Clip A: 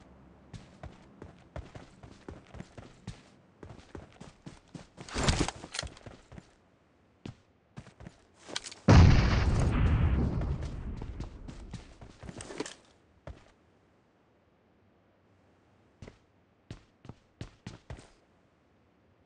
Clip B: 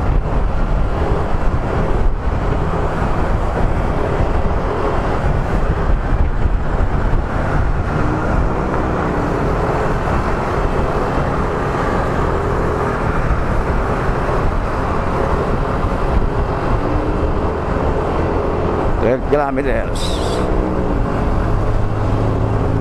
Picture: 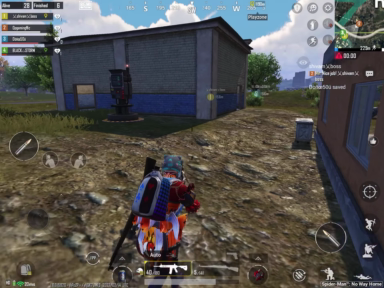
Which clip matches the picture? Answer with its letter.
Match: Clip A